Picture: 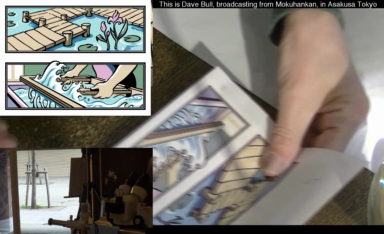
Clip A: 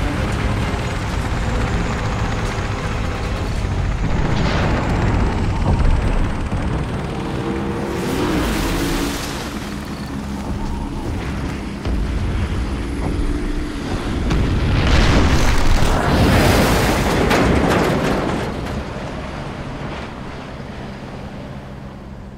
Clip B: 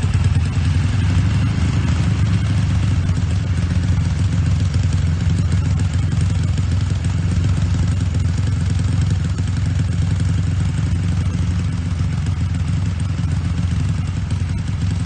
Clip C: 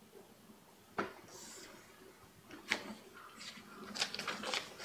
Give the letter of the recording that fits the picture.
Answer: C